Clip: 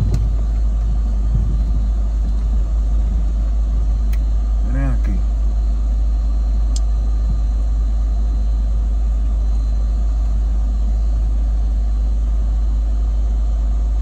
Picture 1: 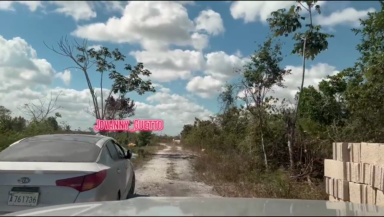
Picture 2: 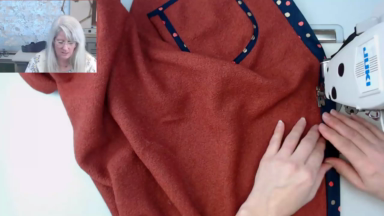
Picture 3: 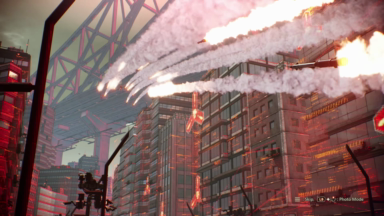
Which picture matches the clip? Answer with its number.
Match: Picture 1